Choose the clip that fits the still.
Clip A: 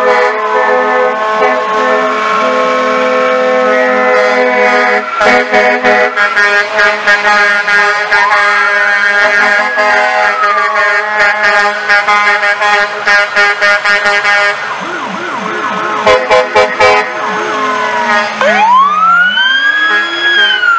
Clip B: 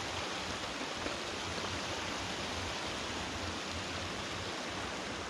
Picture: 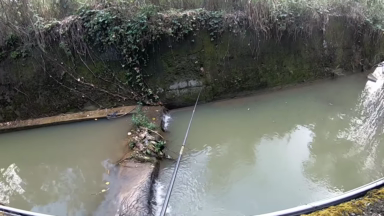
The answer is B